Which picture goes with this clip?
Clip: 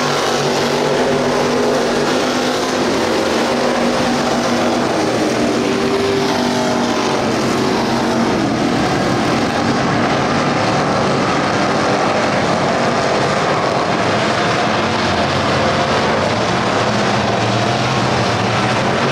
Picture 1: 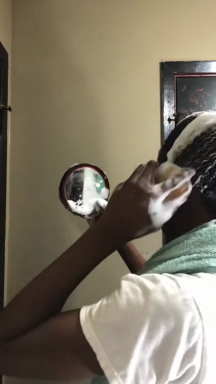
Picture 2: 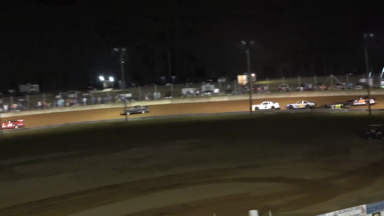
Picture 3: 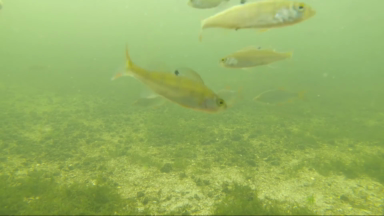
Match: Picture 2